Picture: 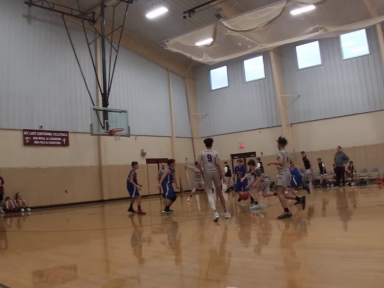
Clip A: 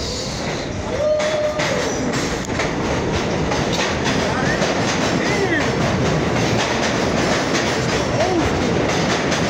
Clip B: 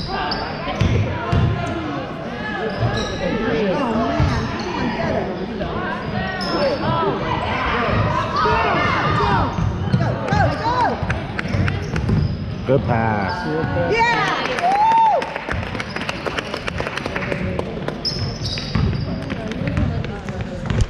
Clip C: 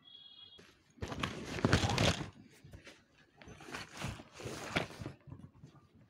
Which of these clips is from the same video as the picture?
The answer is B